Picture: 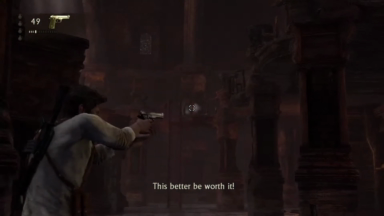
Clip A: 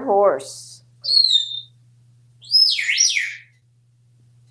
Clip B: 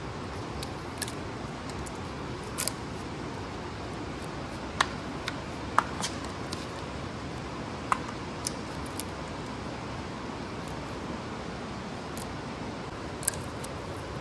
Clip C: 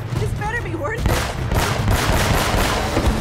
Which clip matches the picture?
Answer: C